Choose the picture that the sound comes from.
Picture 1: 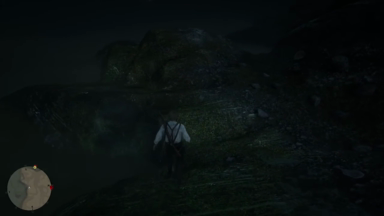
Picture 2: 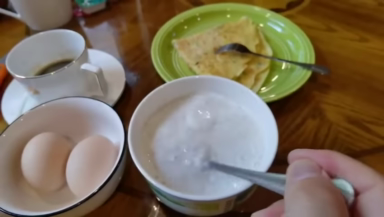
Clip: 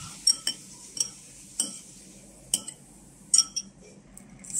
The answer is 2